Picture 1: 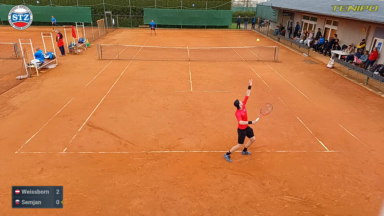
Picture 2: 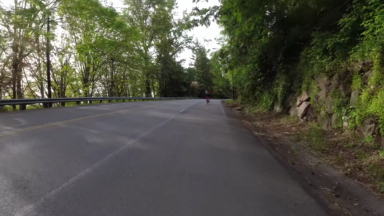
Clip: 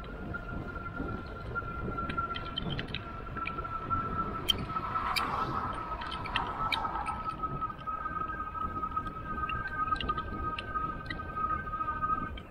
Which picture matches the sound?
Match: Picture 2